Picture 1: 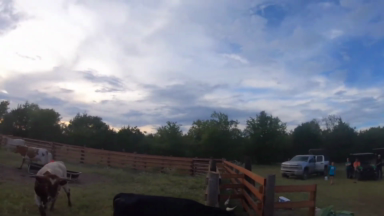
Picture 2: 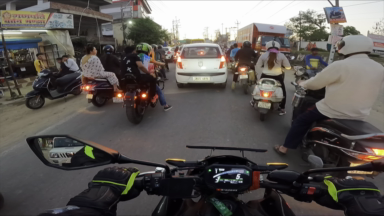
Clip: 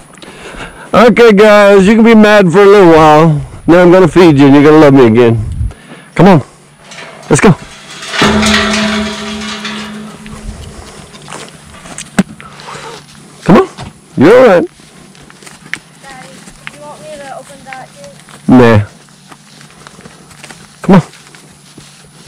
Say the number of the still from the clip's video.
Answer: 1